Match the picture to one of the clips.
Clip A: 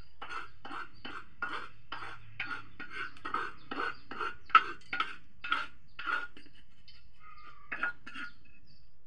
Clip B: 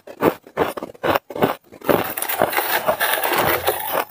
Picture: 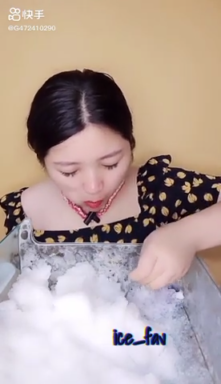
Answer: B